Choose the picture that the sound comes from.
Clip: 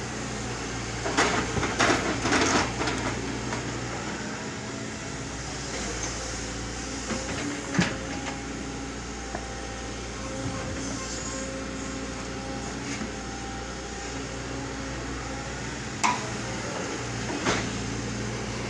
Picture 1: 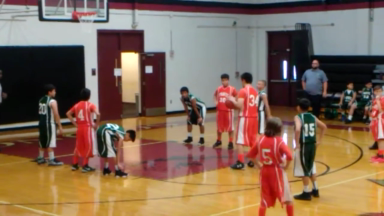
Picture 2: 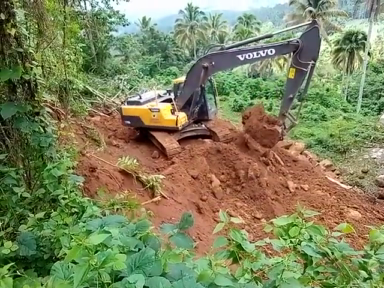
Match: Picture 2